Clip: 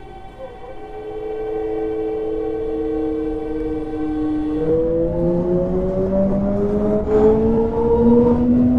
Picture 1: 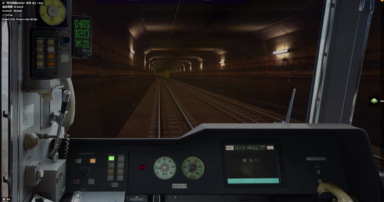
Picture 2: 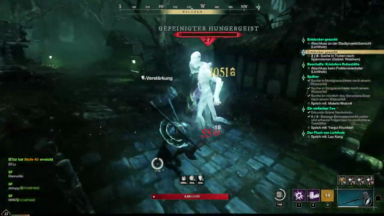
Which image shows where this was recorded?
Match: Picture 1